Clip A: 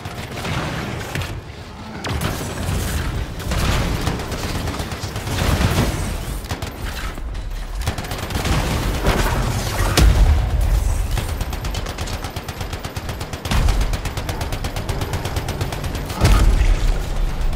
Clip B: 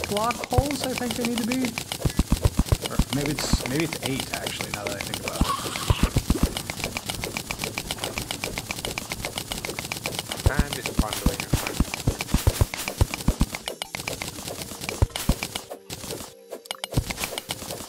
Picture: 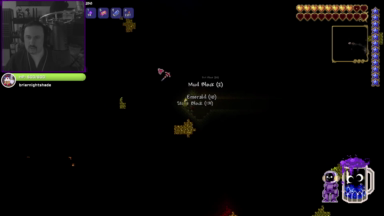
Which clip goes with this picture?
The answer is B